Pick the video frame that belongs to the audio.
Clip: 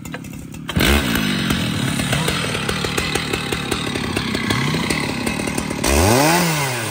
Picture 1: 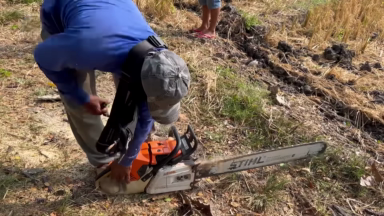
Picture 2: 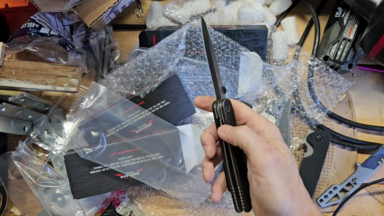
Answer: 1